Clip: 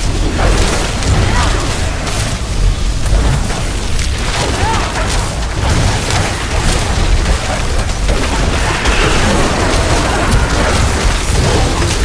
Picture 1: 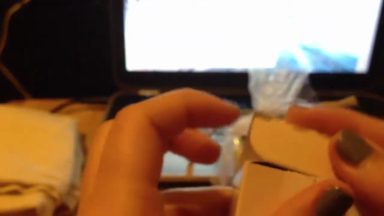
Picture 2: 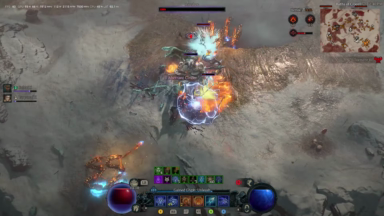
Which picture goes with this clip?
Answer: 2